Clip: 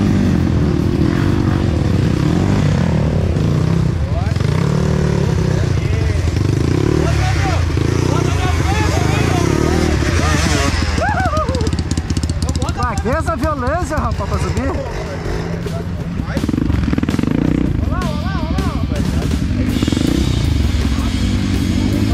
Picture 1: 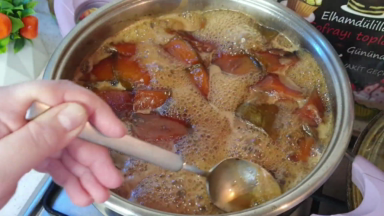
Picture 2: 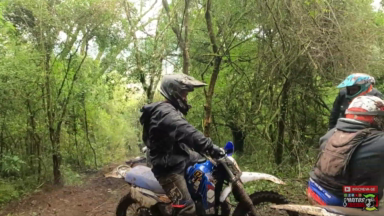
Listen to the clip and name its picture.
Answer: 2